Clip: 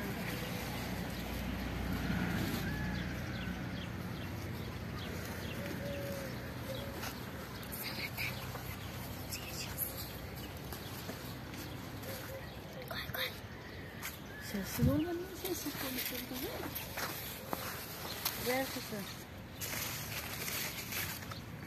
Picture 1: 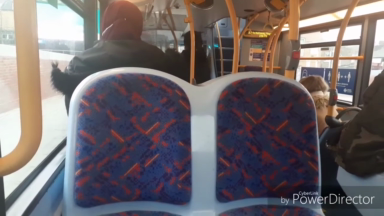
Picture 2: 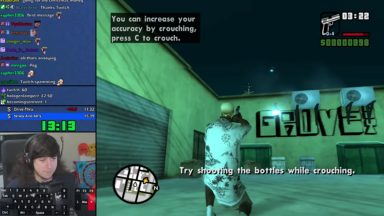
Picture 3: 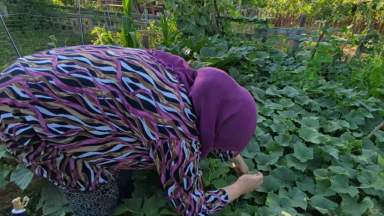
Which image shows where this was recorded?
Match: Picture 3